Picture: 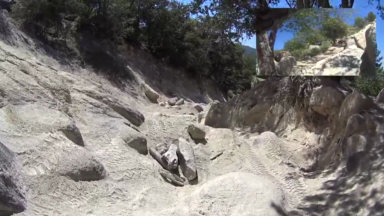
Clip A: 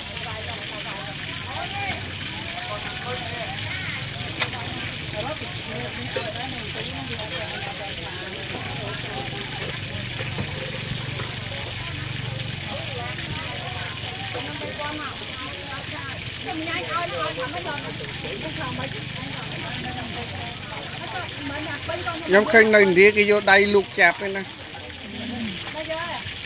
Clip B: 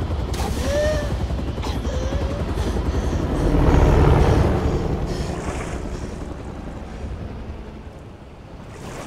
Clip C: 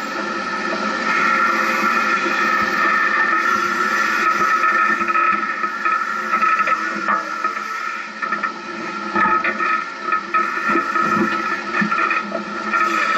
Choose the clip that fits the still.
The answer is C